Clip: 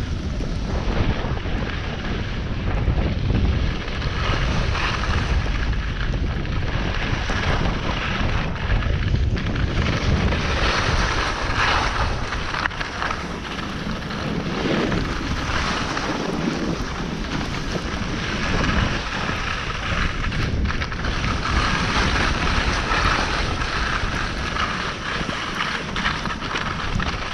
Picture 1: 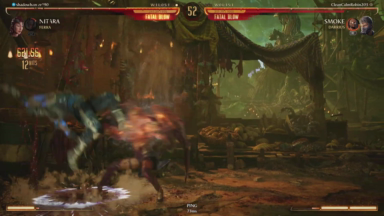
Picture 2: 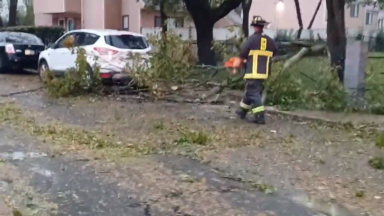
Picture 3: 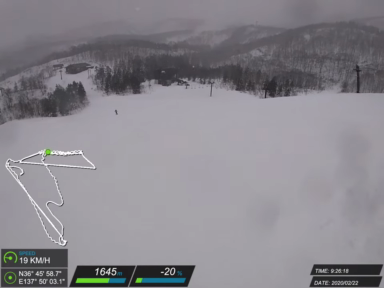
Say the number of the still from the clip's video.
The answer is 3